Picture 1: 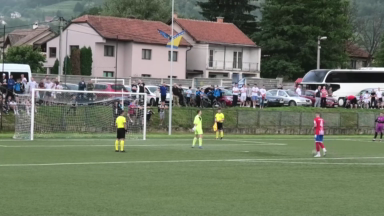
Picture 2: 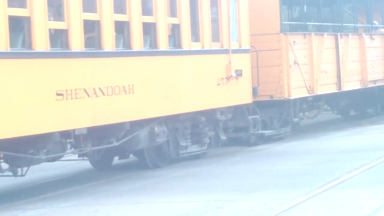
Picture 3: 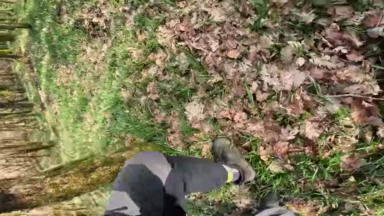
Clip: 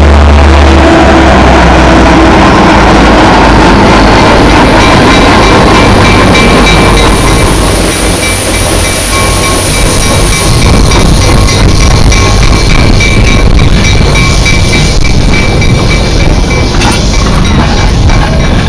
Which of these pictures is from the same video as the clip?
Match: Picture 2